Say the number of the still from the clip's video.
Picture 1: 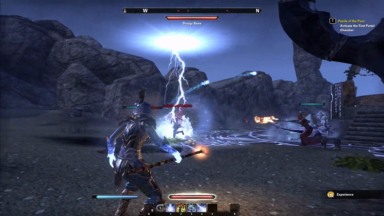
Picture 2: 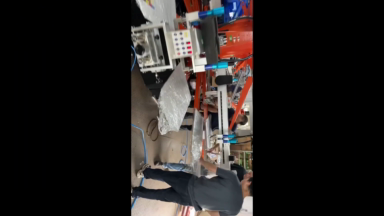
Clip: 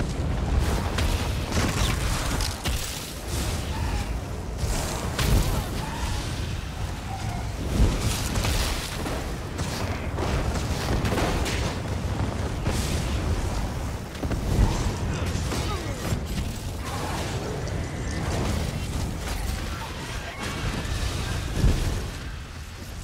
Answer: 1